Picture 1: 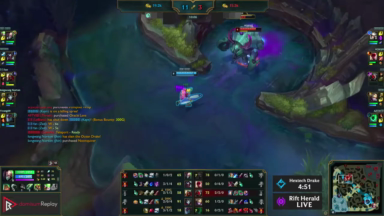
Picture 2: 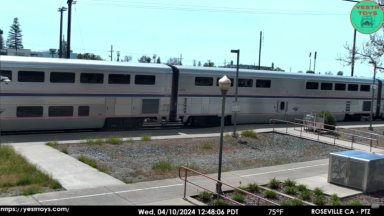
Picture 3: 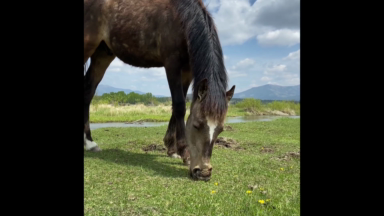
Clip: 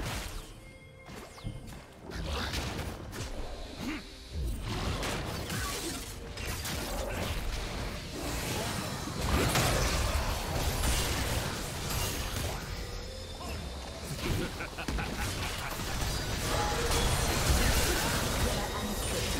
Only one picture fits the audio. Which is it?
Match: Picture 1